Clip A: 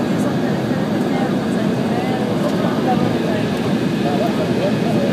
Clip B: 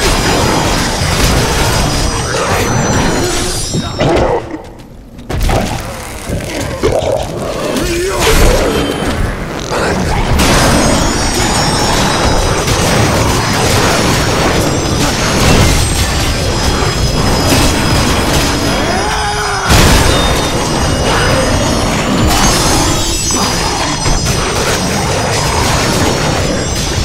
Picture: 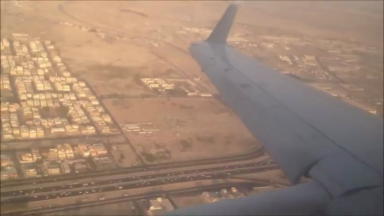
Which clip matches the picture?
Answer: A